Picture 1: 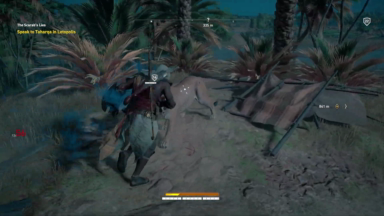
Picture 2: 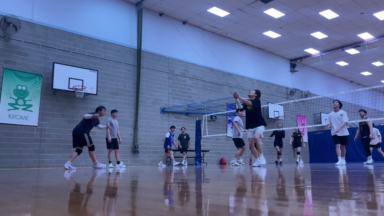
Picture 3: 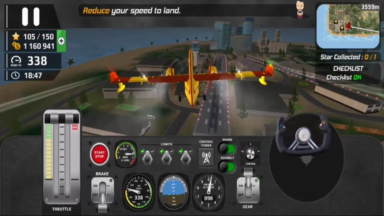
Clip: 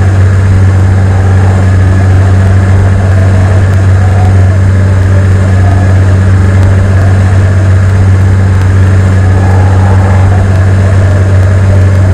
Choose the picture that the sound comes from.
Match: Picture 3